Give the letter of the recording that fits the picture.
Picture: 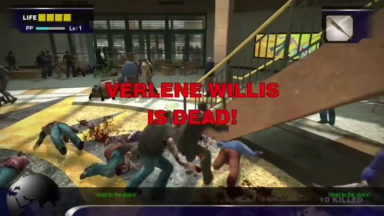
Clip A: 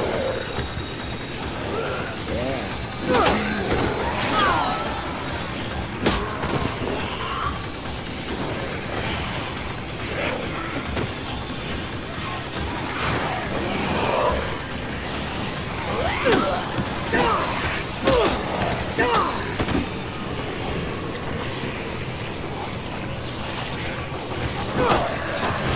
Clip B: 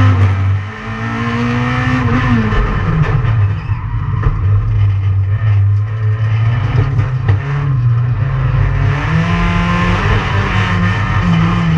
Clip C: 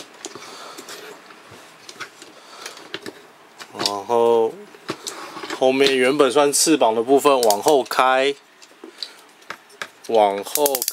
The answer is A